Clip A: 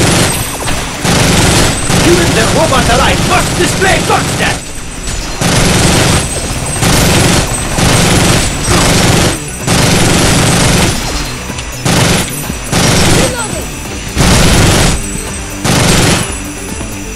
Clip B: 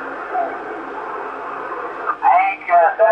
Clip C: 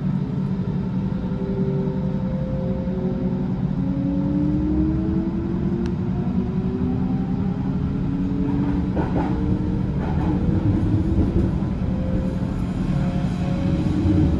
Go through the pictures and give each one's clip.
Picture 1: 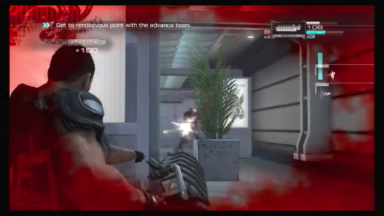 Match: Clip A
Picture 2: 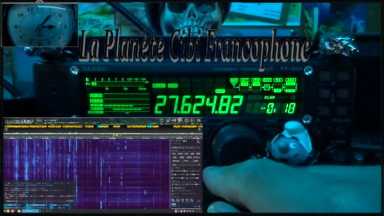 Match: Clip B